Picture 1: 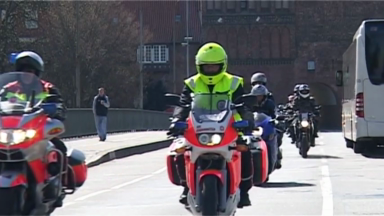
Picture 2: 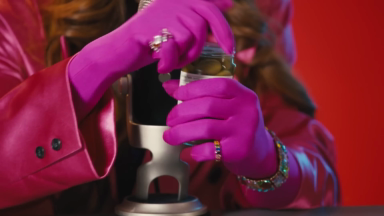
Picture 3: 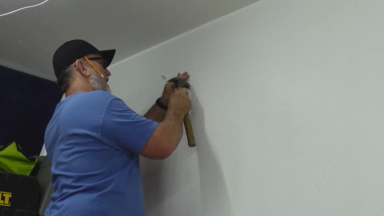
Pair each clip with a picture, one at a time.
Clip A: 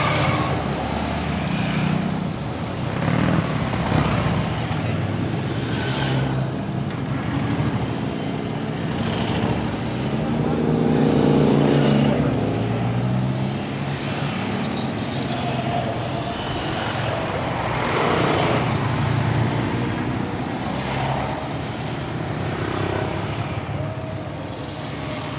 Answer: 1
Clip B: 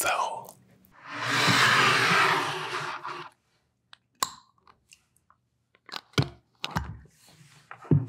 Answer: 2